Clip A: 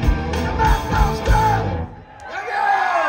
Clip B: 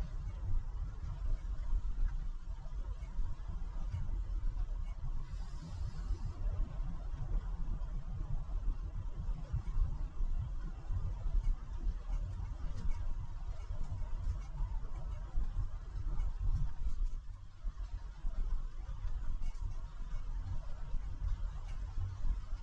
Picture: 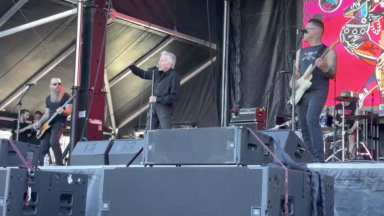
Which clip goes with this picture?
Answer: A